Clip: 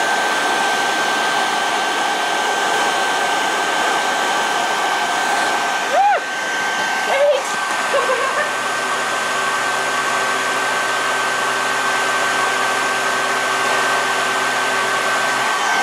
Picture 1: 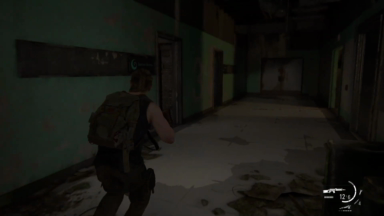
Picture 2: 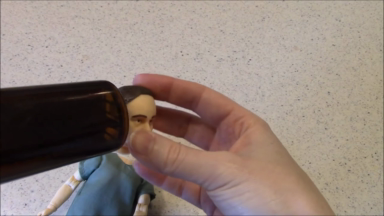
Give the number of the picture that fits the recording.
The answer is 2